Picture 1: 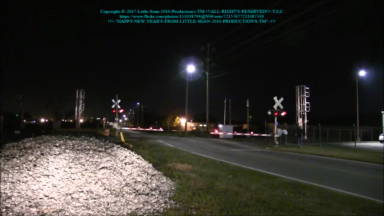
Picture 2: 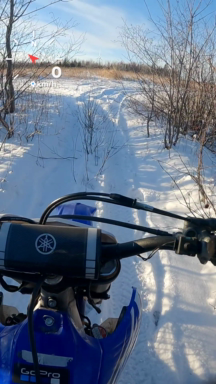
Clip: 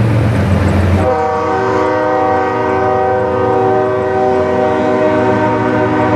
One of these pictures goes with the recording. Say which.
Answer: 1